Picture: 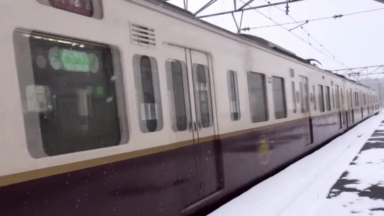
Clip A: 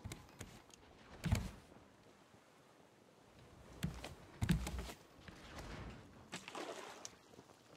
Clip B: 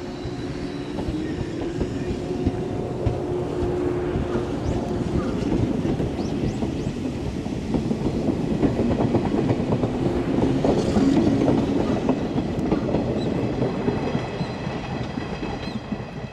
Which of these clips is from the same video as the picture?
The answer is B